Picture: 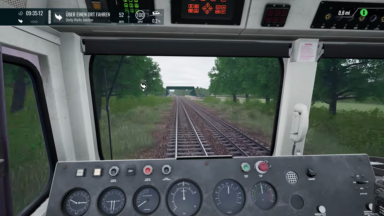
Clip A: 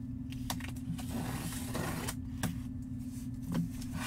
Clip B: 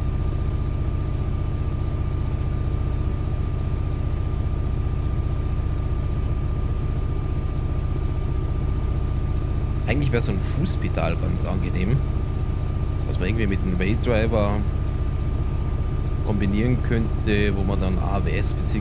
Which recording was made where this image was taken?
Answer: B